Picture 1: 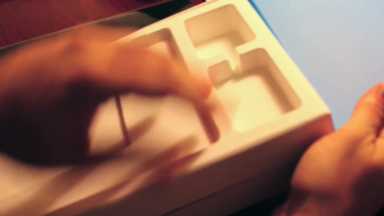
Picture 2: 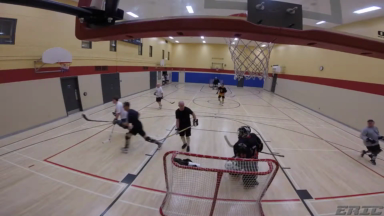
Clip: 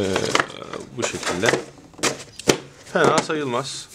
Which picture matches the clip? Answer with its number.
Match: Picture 1